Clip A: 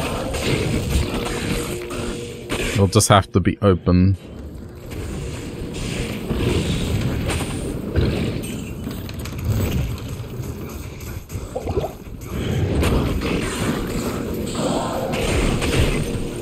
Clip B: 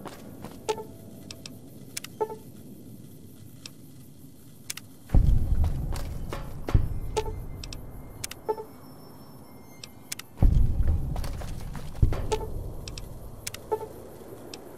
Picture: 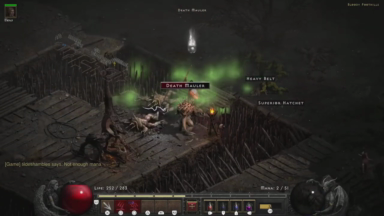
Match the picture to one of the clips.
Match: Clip A